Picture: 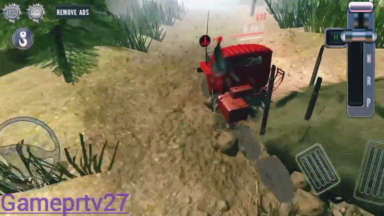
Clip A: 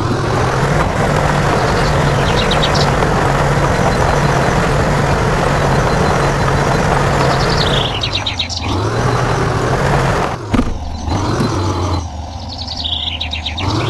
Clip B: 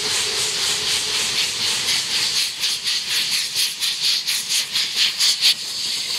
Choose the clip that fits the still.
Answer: A